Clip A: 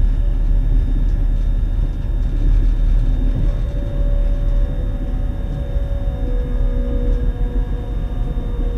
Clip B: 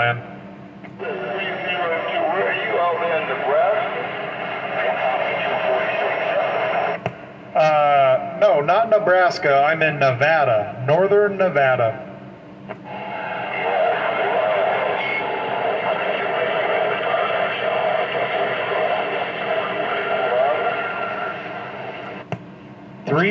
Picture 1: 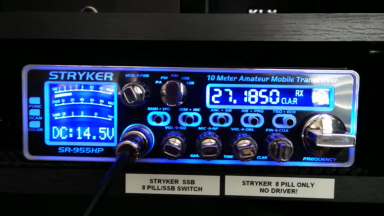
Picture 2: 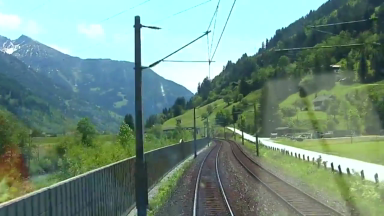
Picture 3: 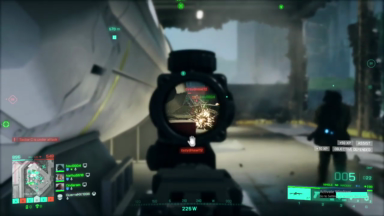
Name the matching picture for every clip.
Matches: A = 2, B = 1